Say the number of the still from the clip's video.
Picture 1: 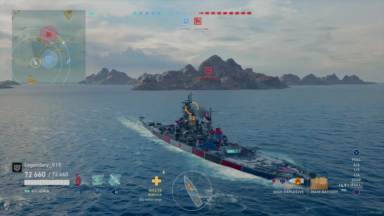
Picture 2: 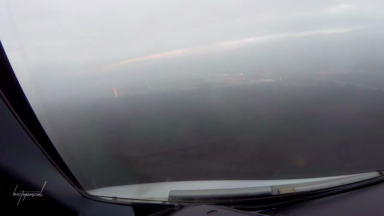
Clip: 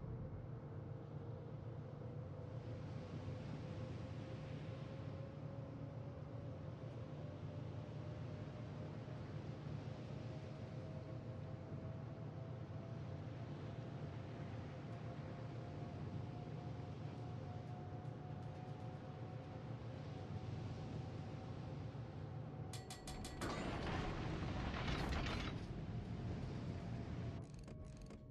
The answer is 1